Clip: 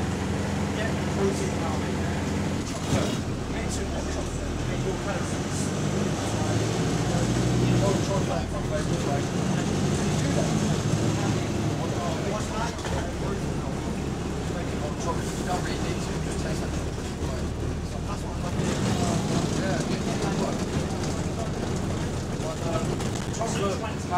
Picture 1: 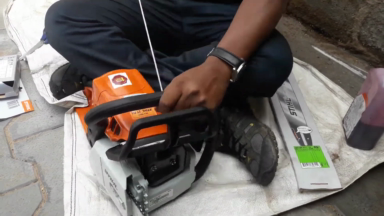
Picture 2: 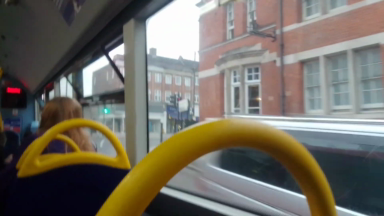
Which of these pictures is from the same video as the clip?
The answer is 2